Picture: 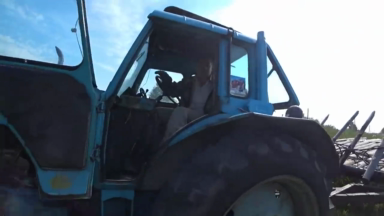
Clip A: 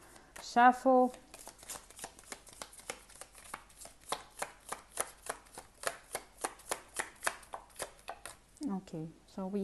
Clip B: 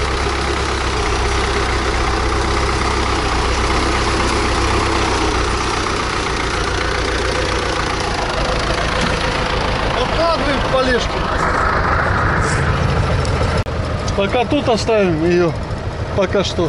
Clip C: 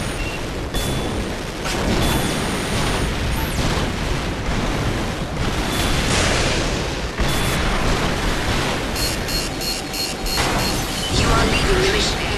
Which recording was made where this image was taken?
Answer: B